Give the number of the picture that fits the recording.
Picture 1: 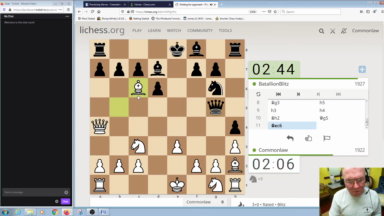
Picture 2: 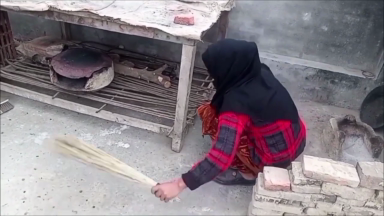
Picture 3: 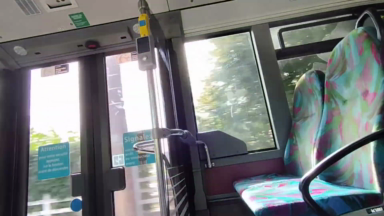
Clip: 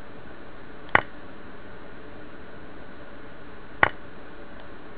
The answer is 1